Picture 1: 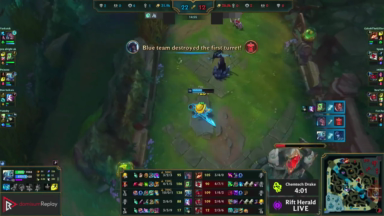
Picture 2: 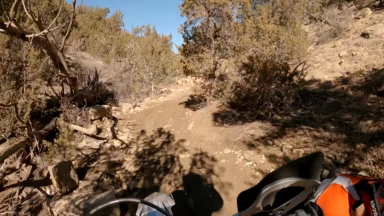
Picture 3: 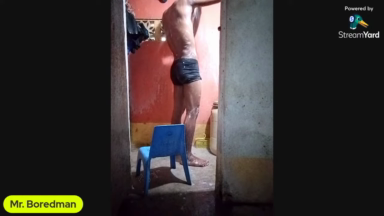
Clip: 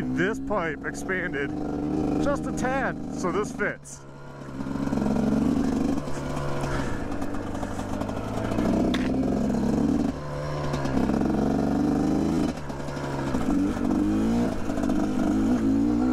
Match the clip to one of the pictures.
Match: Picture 2